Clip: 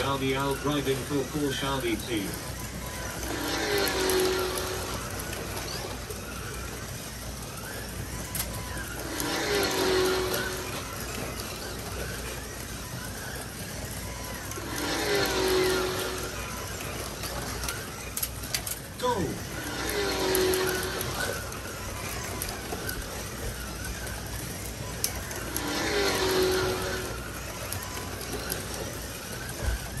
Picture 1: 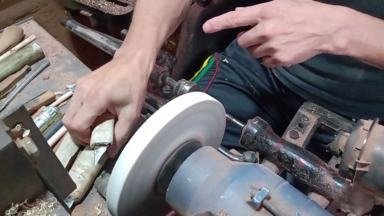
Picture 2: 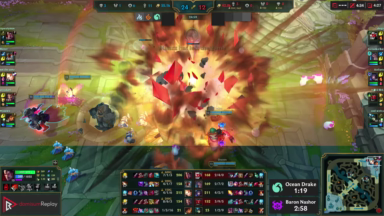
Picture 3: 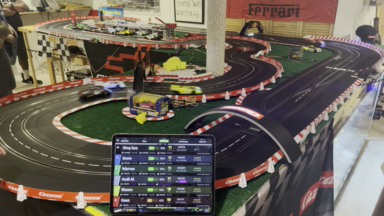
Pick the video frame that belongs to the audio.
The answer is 3